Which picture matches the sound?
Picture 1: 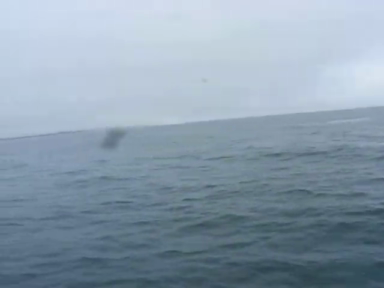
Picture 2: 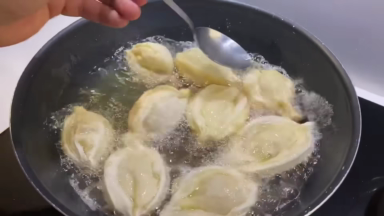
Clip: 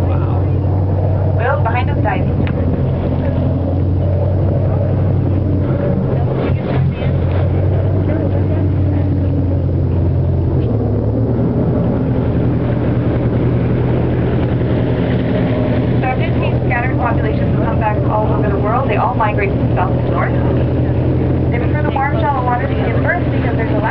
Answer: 1